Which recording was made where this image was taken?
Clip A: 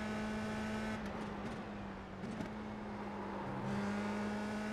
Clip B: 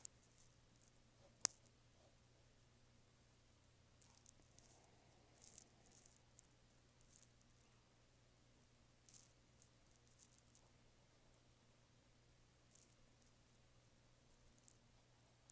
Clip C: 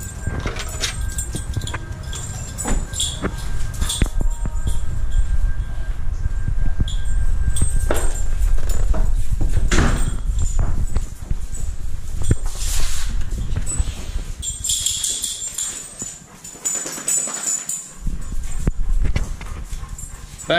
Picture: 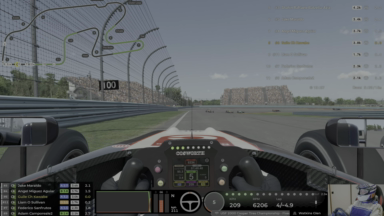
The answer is A